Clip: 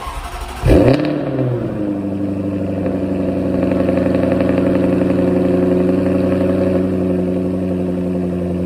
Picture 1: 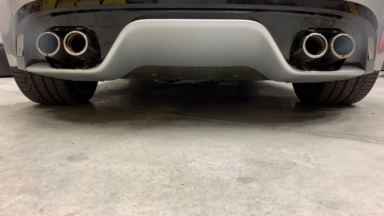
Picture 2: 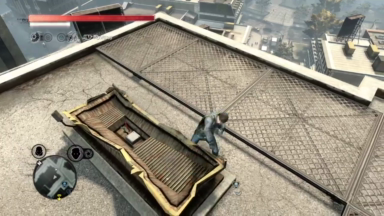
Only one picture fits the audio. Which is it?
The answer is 1